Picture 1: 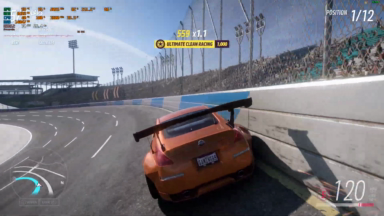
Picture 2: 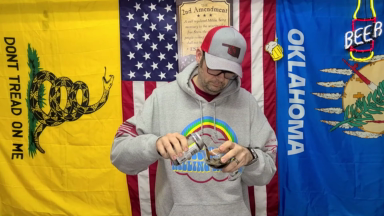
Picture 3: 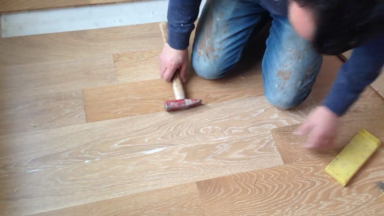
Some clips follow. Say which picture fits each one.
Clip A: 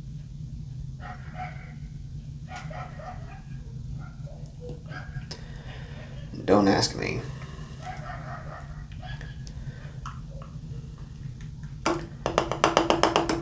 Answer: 2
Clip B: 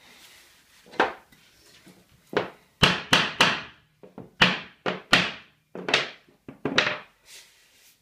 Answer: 3